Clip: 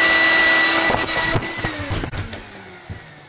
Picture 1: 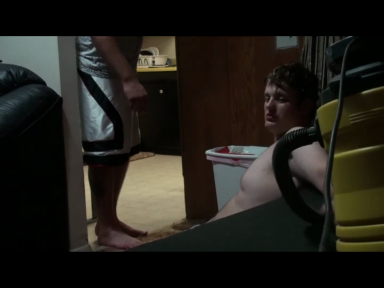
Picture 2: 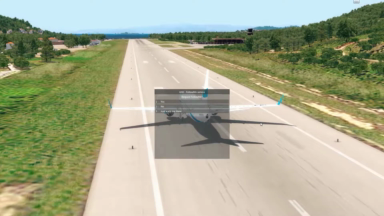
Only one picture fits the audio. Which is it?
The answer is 1